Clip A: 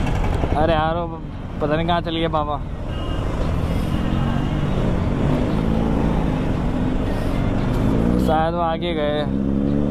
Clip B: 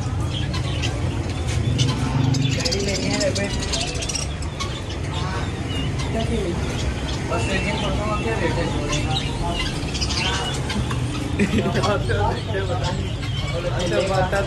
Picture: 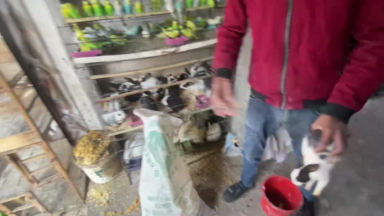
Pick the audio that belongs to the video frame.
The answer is B